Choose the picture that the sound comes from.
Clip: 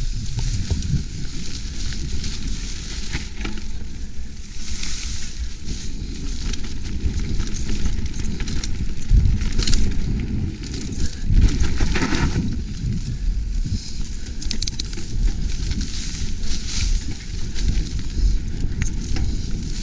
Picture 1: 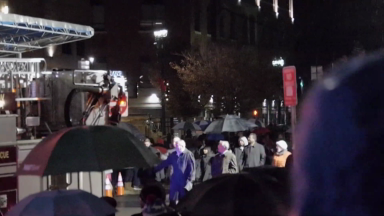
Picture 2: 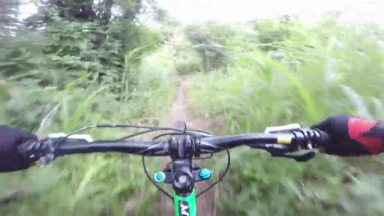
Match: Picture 2